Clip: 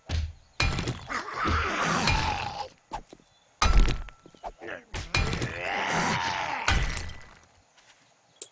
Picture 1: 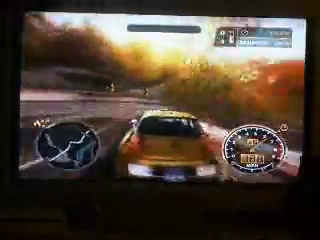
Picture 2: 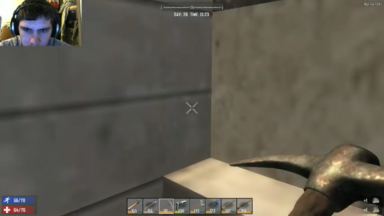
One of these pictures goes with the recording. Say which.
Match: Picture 2